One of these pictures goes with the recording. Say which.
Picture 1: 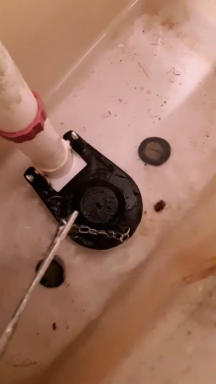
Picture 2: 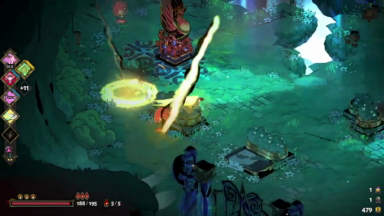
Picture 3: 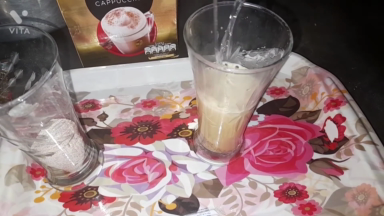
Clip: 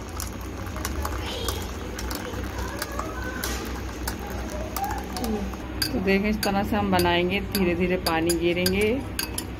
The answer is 3